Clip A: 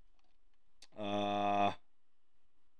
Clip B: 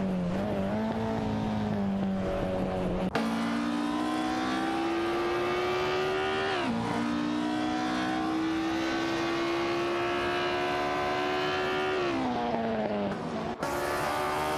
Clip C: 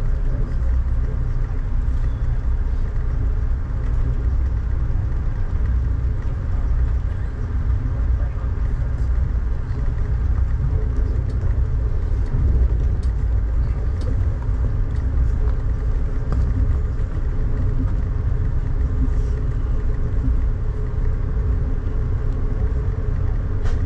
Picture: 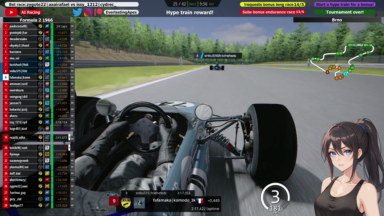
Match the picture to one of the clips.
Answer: B